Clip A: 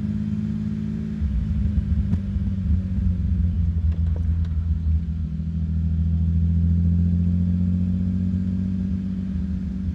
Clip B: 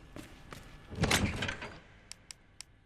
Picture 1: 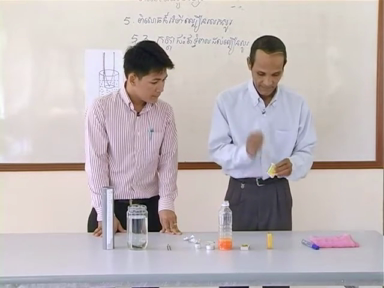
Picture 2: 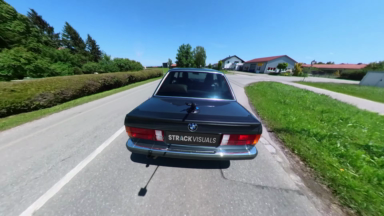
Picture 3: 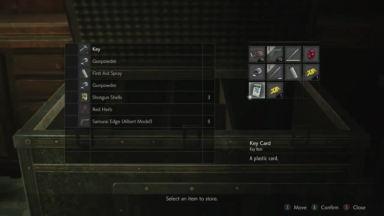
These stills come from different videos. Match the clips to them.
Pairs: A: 2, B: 3